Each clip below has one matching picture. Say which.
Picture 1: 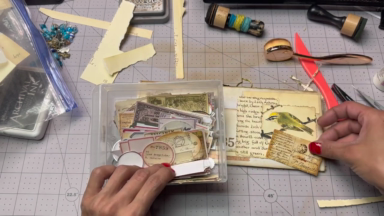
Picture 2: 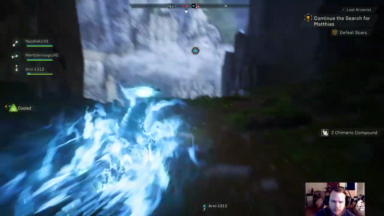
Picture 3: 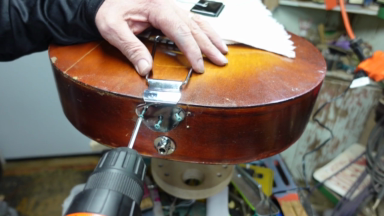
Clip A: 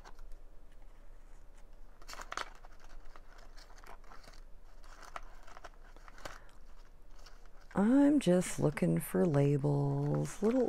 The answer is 1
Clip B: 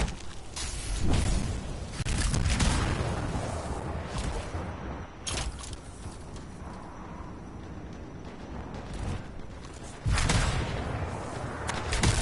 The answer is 2